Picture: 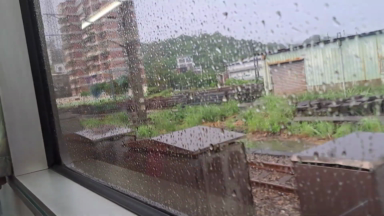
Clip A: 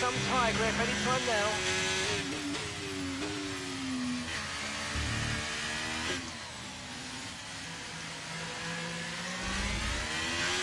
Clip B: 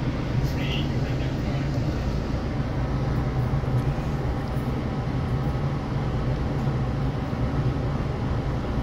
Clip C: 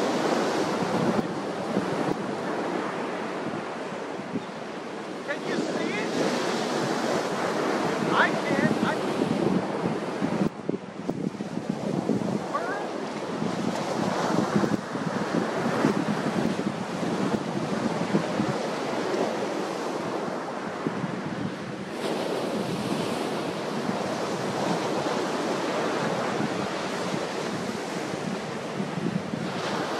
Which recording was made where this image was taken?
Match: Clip B